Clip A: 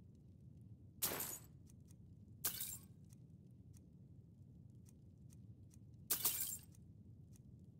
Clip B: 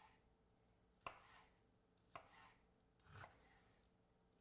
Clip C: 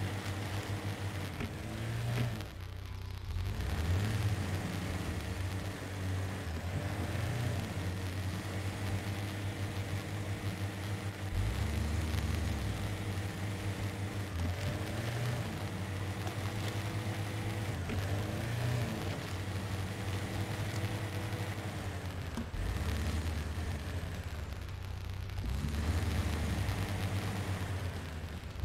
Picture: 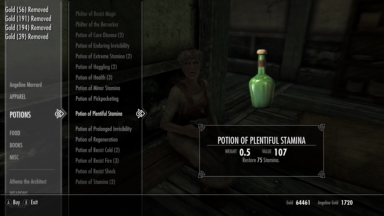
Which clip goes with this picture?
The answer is A